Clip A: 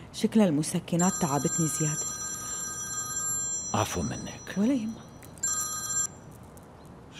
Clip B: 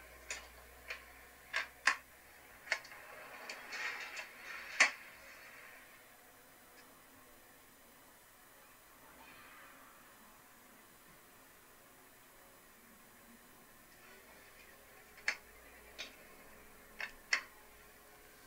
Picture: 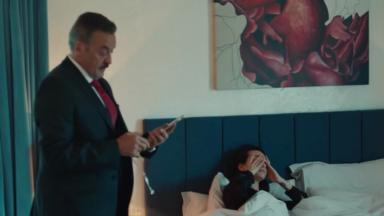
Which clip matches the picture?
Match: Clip A